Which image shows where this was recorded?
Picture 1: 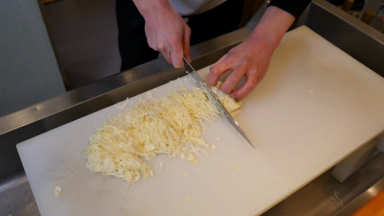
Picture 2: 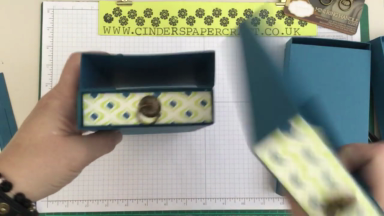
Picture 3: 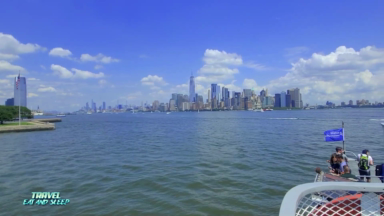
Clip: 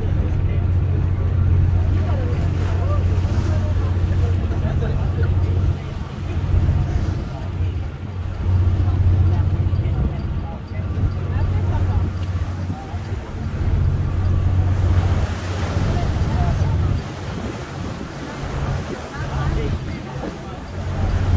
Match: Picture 3